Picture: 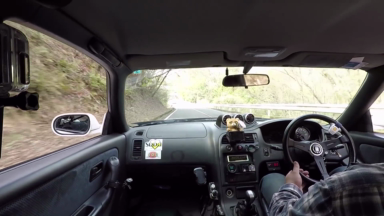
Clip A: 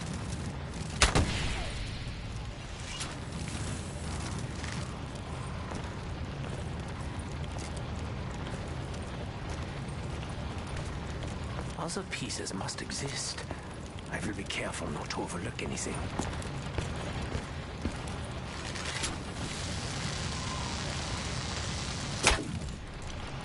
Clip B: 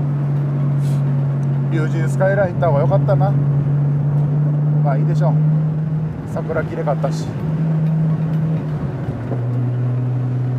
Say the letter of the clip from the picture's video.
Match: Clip B